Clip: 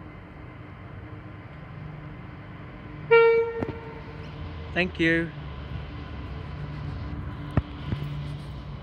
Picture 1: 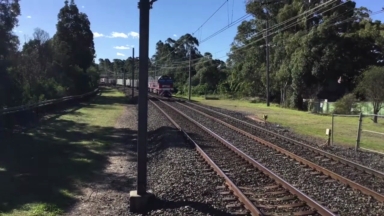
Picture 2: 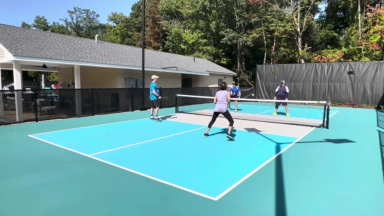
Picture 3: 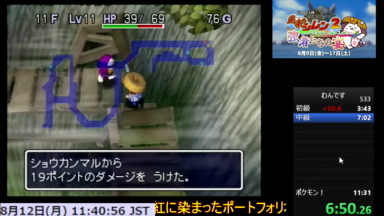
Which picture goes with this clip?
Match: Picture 1